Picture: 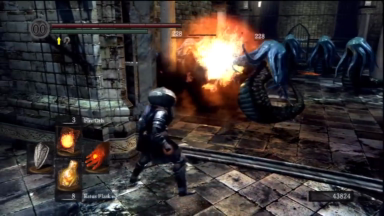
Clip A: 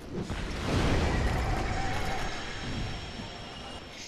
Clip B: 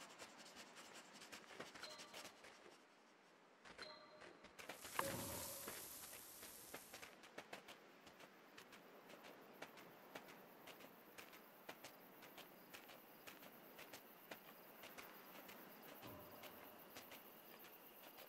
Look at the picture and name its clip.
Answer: A